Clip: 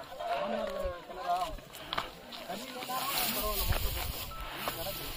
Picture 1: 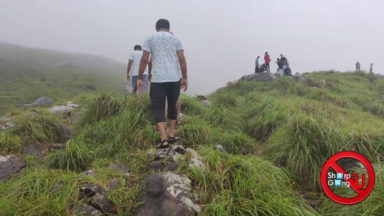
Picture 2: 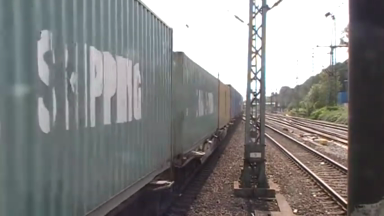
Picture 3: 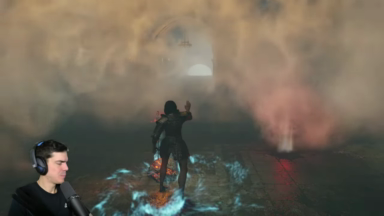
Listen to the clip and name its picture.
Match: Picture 1